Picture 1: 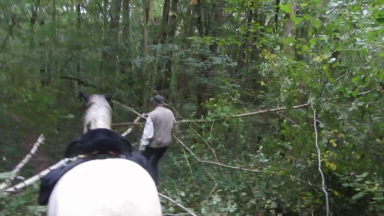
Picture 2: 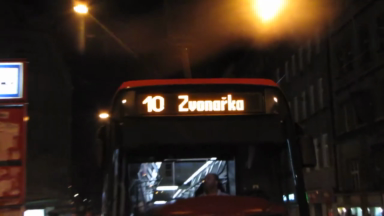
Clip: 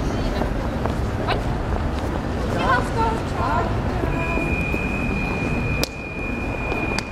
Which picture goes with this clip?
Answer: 2